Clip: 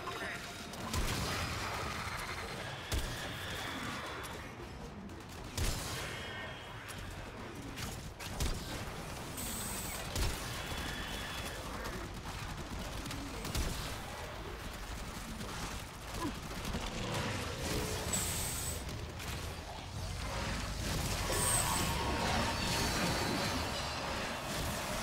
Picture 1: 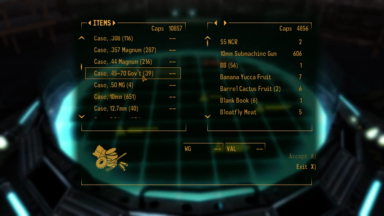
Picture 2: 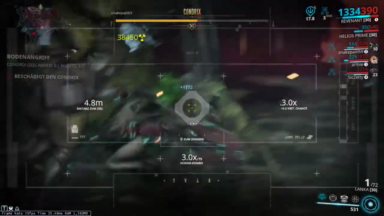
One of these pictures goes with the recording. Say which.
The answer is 2